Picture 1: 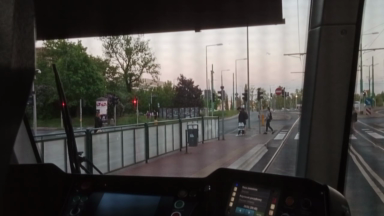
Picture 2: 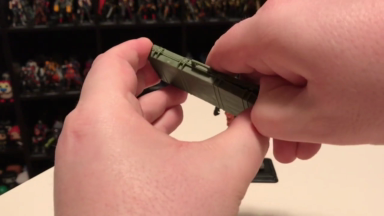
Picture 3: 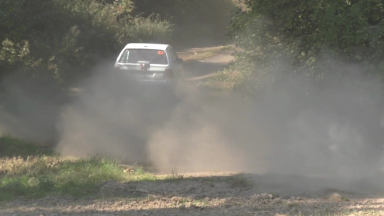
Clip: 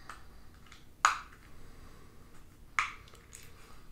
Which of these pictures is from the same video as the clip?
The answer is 2